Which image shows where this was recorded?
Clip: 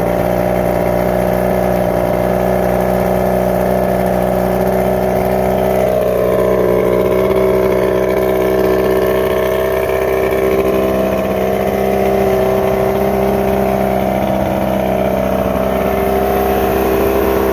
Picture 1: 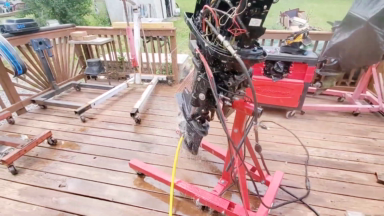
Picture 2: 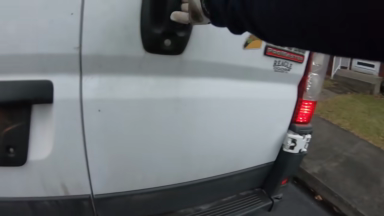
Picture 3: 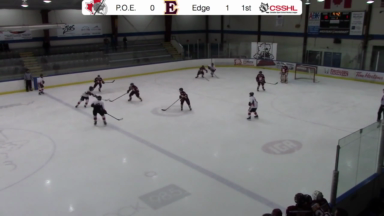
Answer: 1